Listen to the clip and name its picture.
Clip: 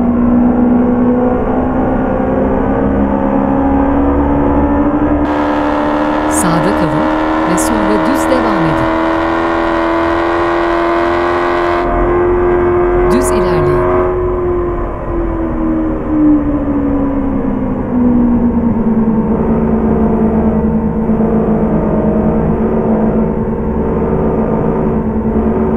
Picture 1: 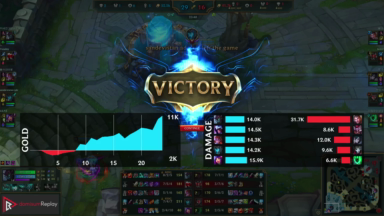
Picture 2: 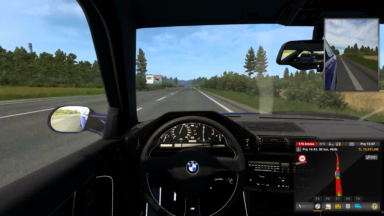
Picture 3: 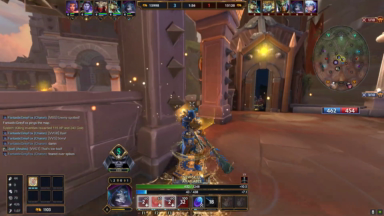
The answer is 2